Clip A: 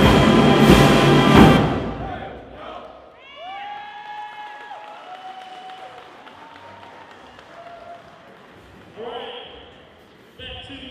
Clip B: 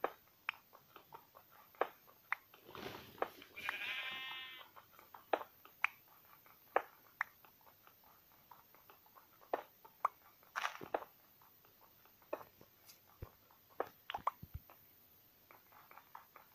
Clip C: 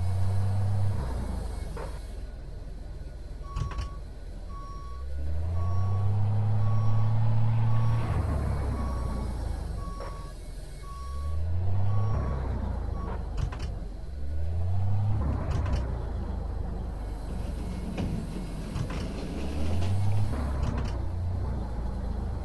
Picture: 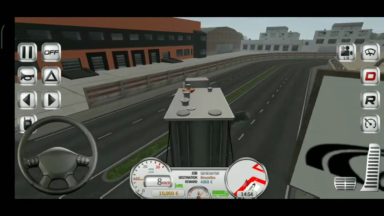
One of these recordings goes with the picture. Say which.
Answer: C